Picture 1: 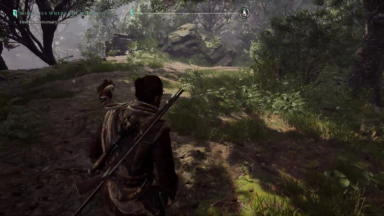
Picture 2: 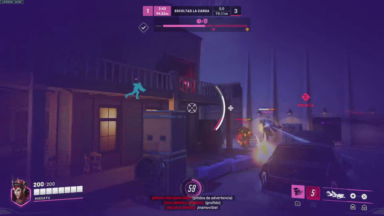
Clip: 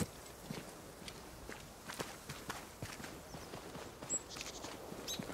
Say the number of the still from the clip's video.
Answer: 1